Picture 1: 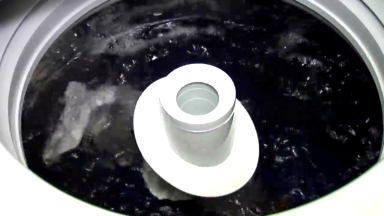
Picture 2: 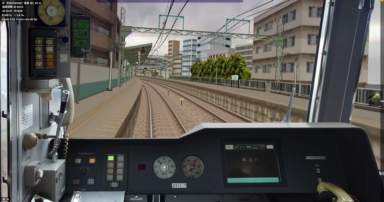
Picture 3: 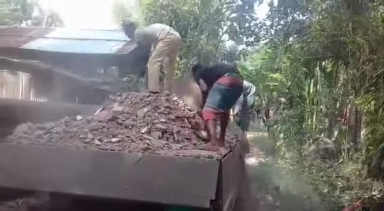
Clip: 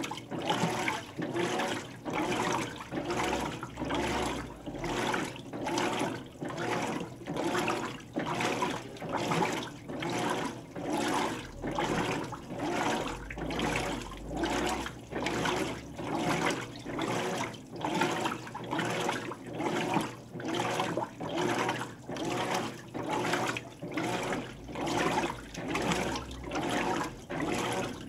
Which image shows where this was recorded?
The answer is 1